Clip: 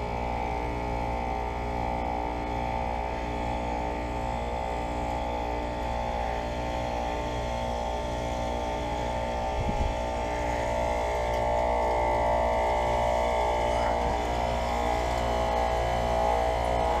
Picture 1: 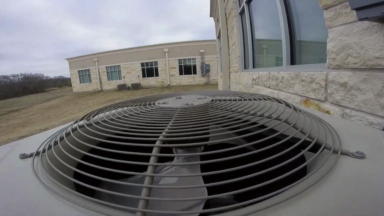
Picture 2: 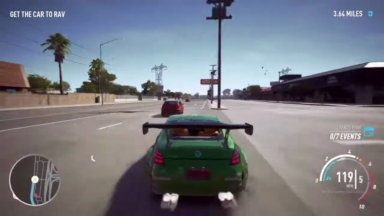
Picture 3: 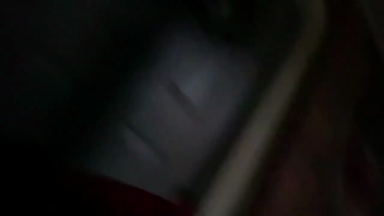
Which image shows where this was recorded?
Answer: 1